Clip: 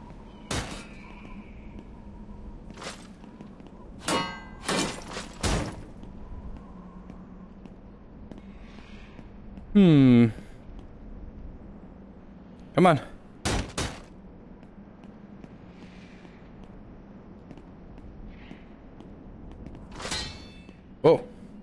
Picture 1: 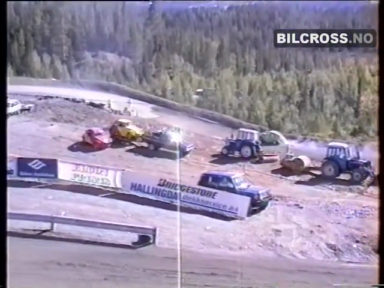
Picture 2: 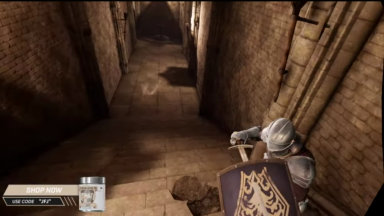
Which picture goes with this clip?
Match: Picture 2